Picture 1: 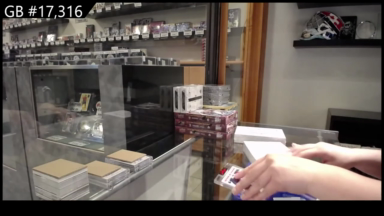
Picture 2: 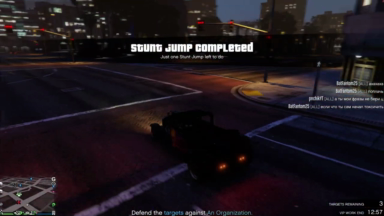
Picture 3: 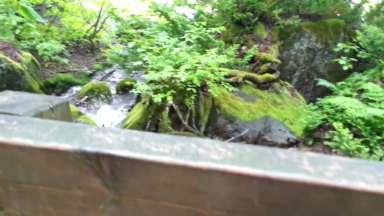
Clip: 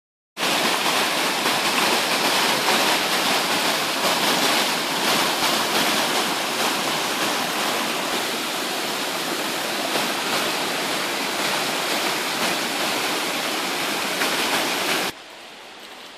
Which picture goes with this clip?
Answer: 3